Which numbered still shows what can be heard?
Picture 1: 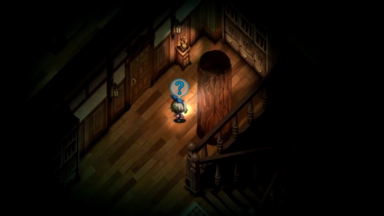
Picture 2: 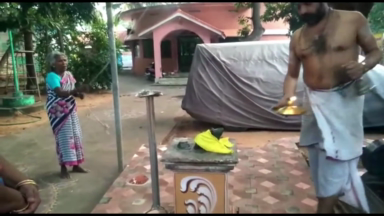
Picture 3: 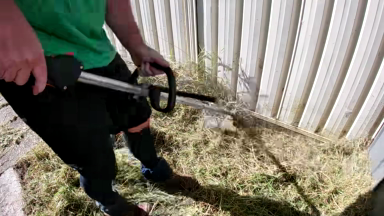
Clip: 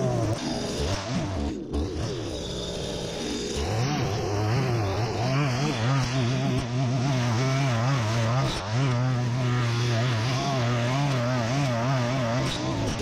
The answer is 3